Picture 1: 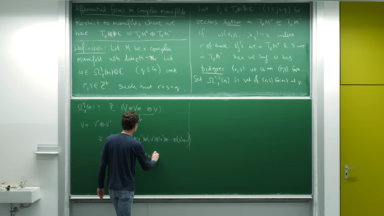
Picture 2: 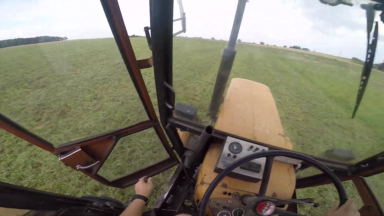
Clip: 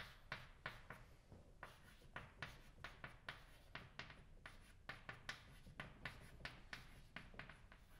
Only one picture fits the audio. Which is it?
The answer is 1